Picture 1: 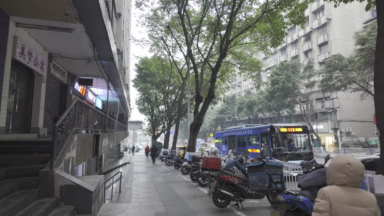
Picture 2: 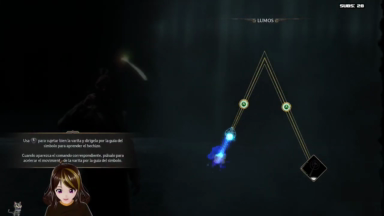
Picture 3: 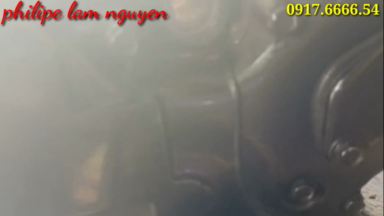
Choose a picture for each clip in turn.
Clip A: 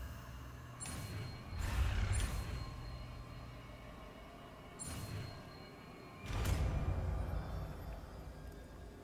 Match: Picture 2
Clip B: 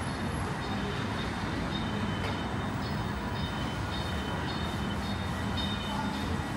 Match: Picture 1